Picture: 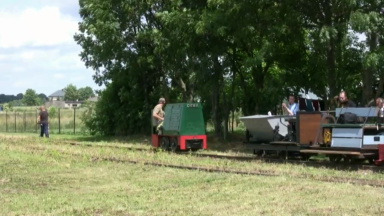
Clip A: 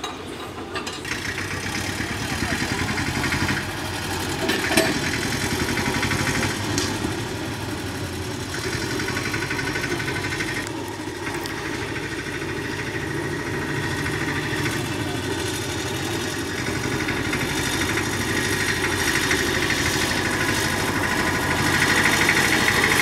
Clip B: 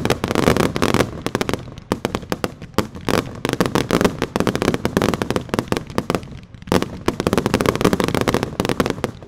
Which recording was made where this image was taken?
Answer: A